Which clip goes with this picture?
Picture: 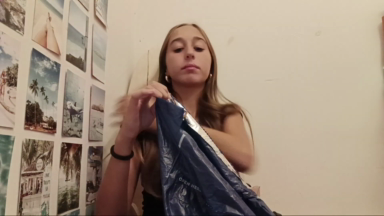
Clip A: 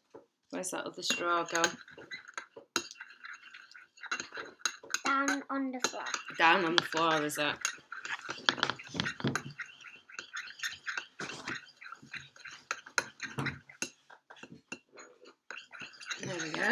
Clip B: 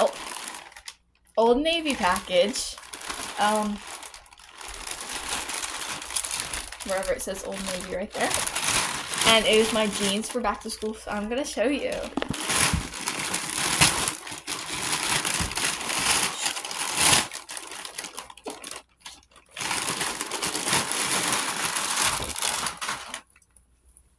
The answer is B